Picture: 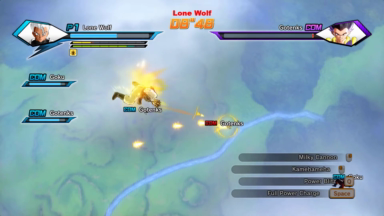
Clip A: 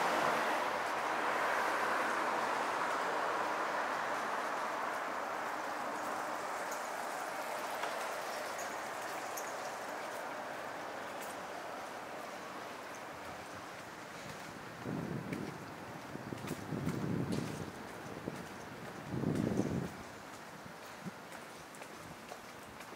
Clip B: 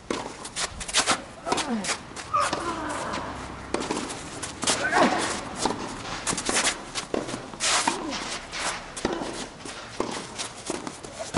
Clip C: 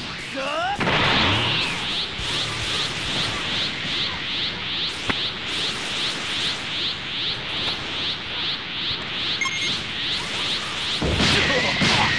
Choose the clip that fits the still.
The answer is C